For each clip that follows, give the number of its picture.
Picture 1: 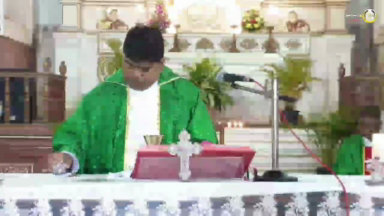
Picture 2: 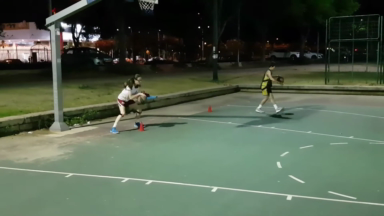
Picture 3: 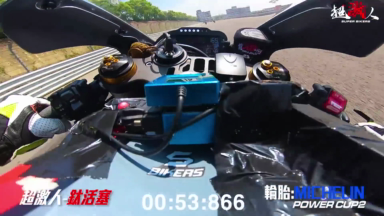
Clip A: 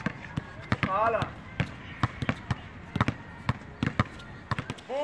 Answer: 2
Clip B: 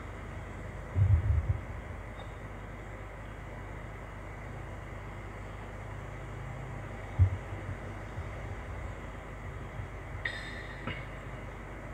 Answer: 1